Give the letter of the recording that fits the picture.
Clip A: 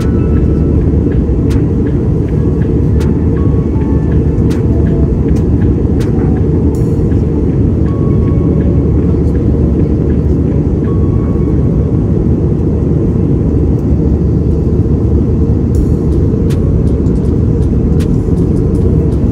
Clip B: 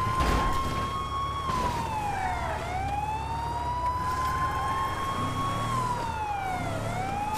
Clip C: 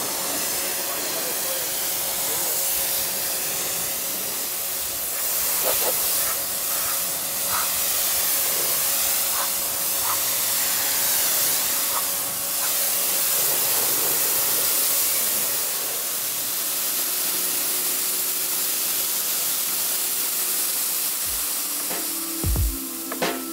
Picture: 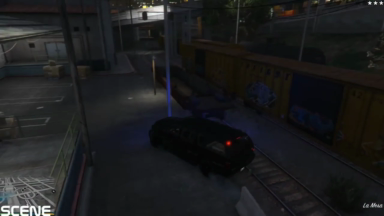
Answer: B